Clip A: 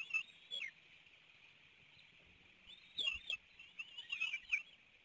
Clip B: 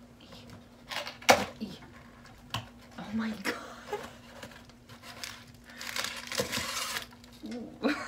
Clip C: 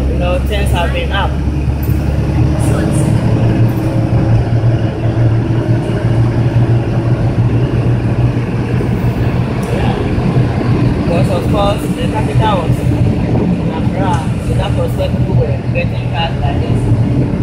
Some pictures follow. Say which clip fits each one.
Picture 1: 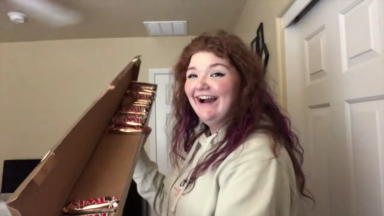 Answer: B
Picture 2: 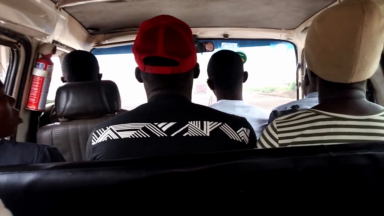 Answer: C